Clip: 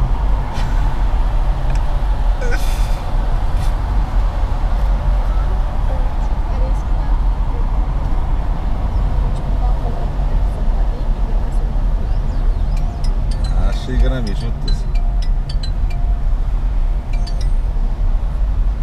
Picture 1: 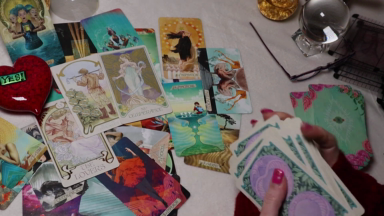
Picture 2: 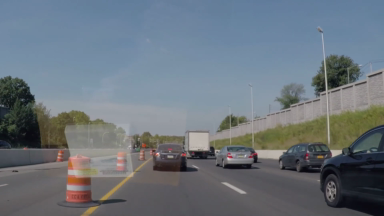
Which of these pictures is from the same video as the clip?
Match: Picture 2